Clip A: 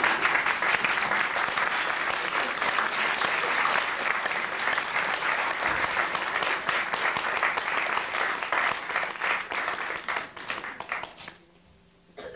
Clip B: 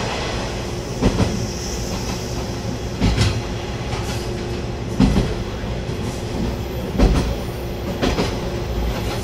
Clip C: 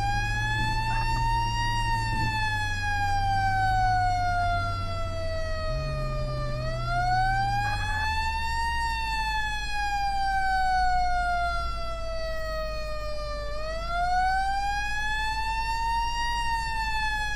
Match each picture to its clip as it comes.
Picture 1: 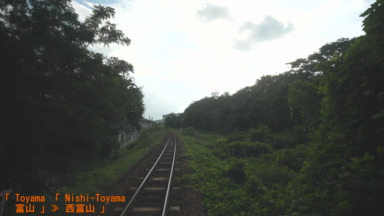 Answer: B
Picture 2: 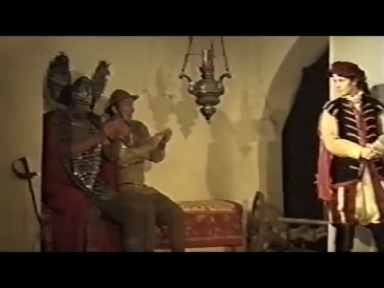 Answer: A